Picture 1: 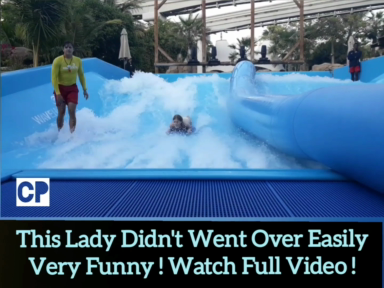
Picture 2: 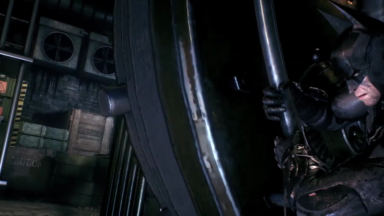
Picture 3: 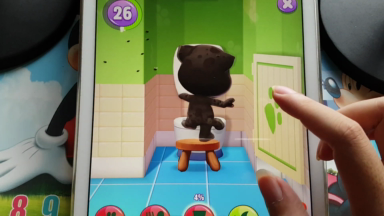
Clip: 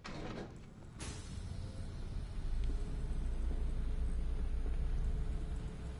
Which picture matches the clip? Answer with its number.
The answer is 2